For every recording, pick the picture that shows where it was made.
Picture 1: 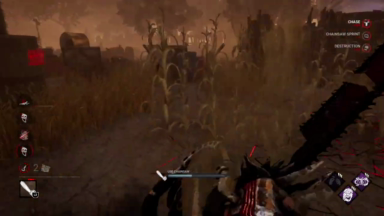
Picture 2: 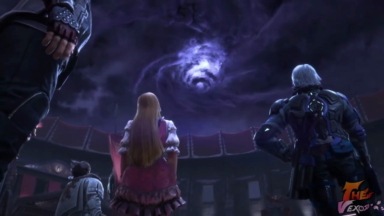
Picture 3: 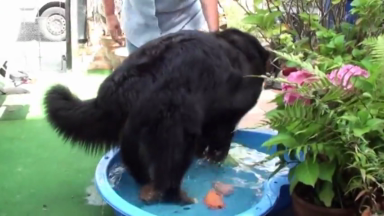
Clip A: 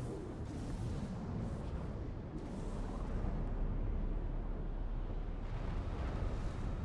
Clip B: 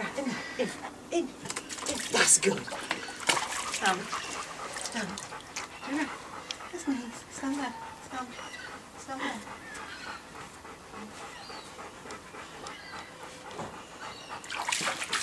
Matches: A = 2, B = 3